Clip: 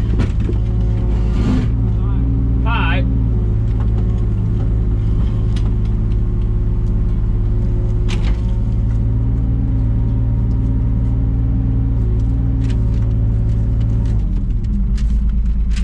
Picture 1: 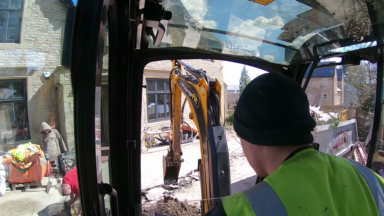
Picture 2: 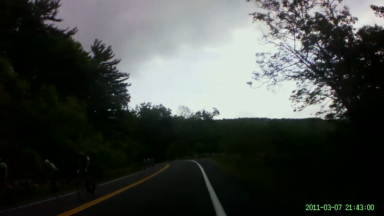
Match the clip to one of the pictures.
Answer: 1